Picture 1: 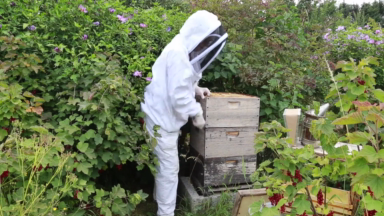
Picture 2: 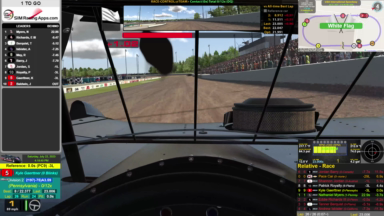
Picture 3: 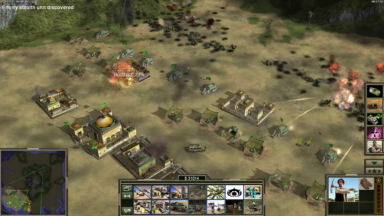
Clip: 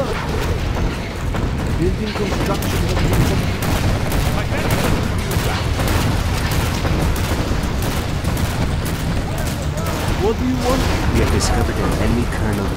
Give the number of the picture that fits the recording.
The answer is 3